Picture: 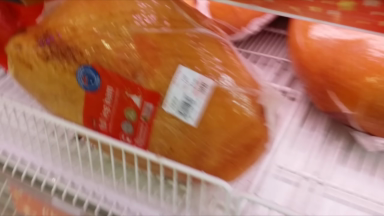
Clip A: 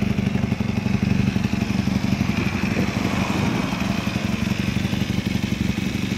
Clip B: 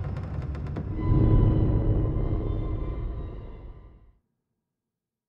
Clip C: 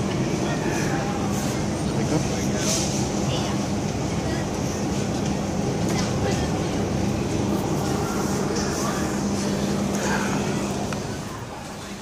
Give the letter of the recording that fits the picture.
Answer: C